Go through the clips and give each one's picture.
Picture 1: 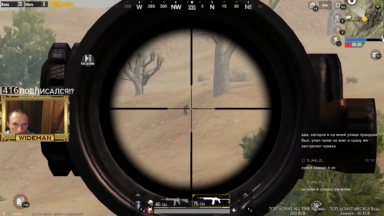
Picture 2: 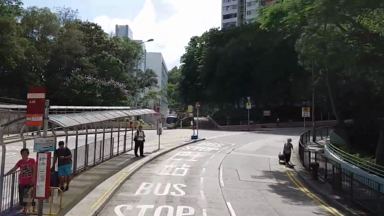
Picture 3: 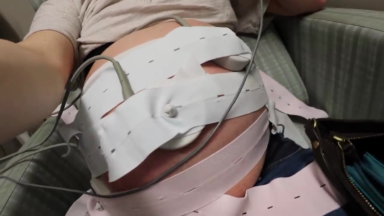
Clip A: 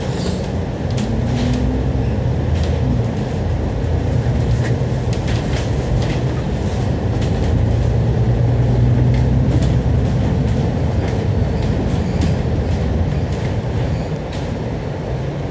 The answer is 2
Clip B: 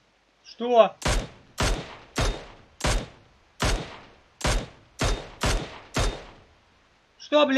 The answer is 1